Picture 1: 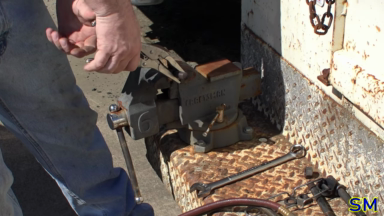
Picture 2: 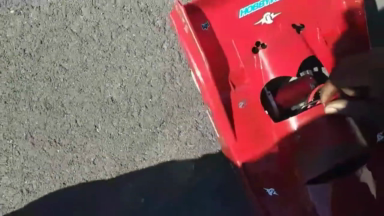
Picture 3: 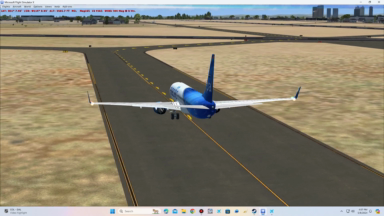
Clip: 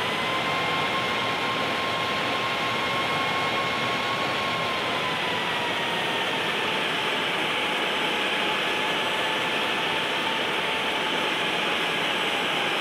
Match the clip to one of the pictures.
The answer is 3